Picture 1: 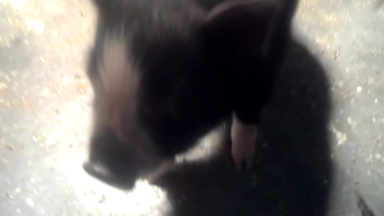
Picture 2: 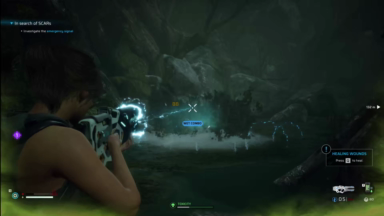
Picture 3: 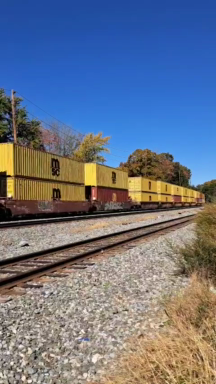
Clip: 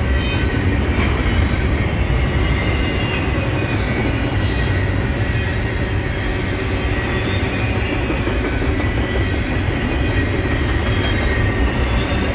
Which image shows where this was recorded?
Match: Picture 3